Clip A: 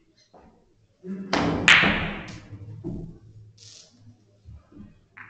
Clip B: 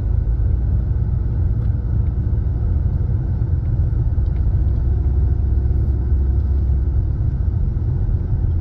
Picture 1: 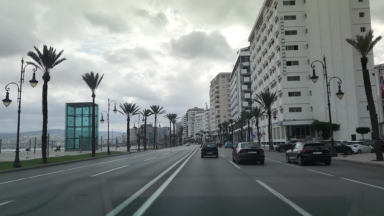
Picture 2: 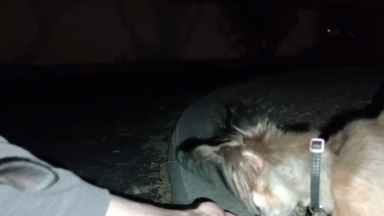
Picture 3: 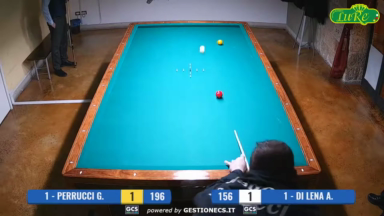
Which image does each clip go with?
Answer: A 3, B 1